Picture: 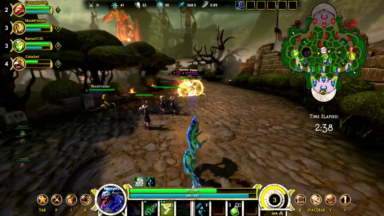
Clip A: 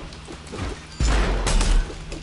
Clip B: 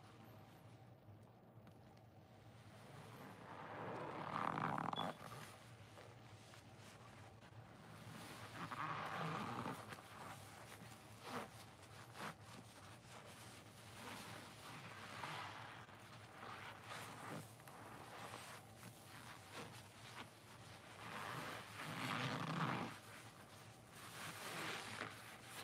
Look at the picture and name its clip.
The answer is A